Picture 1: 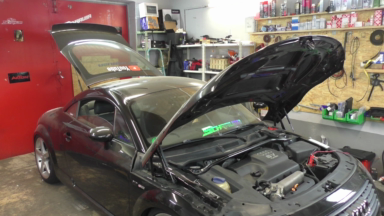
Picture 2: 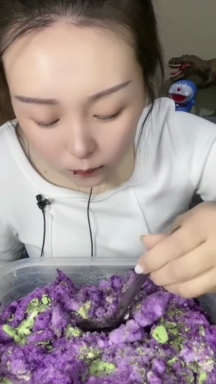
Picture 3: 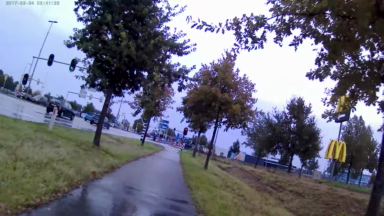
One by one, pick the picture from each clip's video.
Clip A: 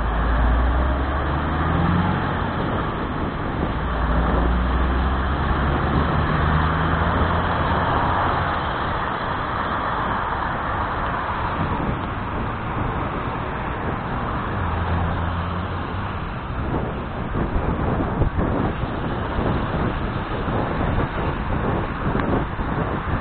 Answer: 3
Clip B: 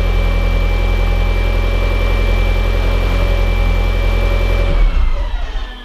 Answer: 1